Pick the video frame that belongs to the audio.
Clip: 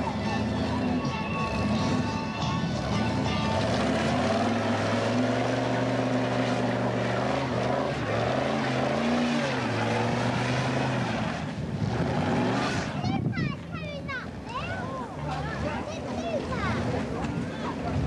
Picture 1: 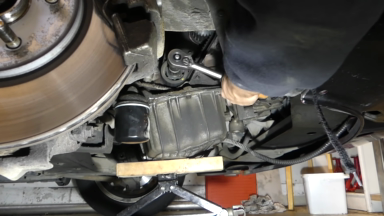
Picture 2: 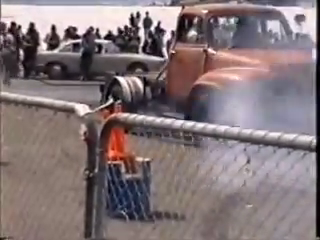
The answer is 2